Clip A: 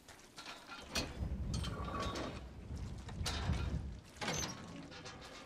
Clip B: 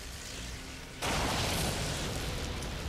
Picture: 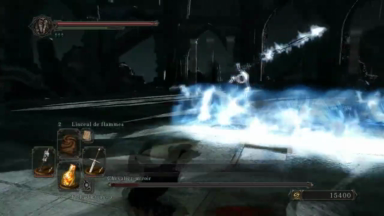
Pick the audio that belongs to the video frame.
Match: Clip B